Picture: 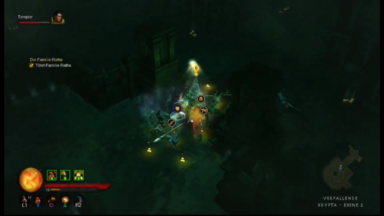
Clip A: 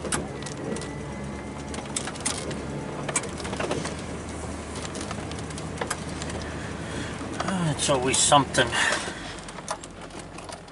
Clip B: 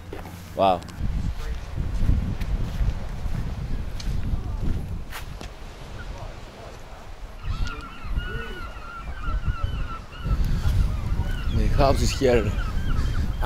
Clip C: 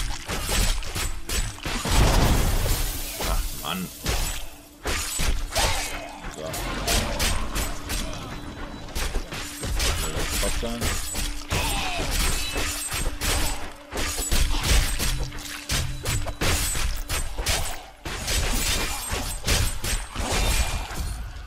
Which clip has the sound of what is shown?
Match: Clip C